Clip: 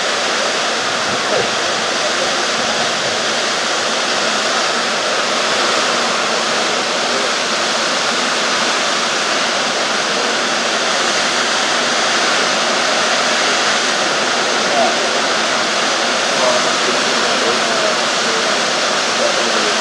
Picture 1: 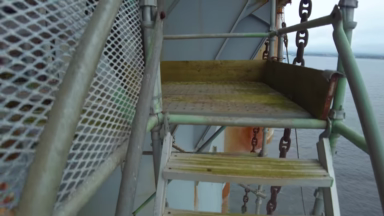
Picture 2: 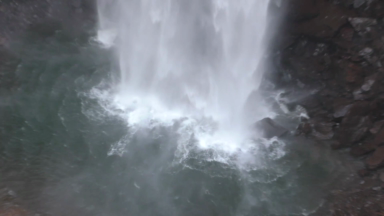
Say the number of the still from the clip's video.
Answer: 2